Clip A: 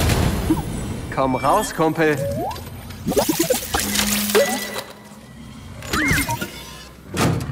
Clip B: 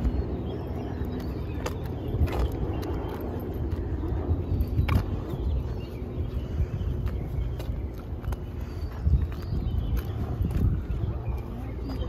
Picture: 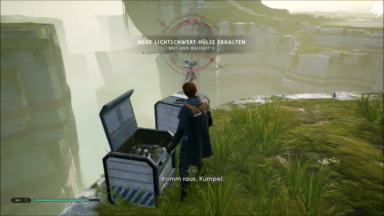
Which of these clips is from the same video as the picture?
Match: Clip A